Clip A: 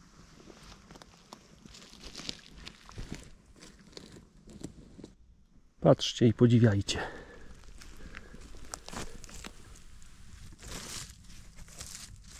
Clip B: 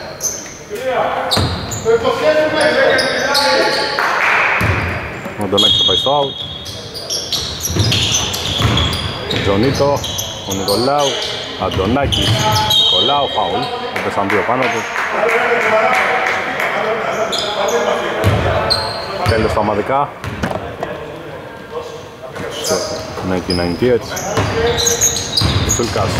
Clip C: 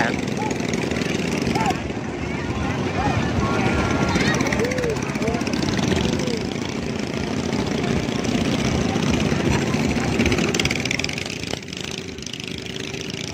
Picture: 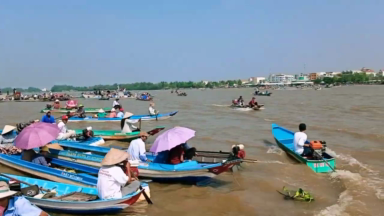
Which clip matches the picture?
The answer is C